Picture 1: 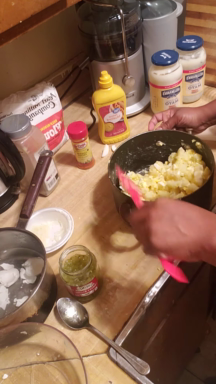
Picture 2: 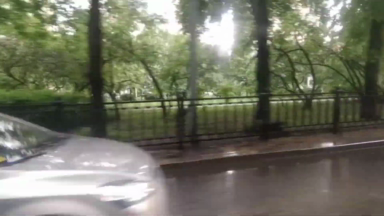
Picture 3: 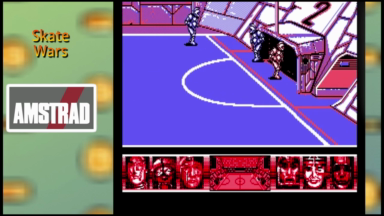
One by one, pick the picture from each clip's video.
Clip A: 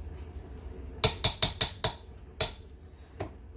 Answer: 1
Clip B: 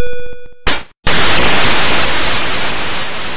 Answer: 3